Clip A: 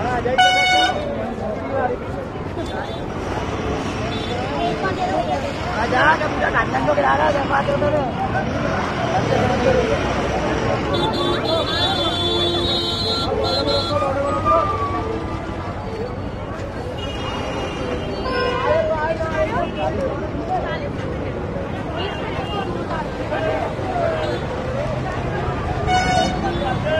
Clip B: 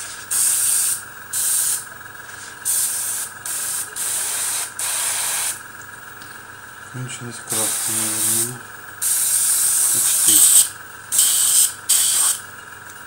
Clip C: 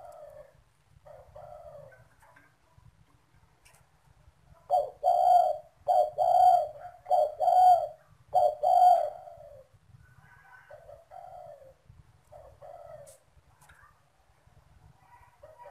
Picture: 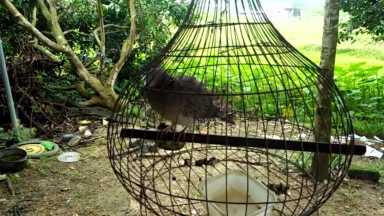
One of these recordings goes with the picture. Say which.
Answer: C